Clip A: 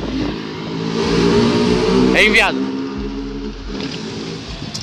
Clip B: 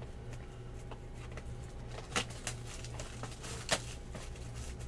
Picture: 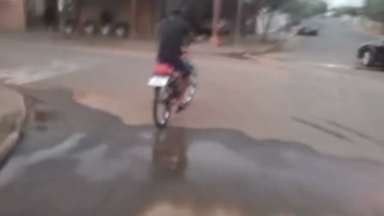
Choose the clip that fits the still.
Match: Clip A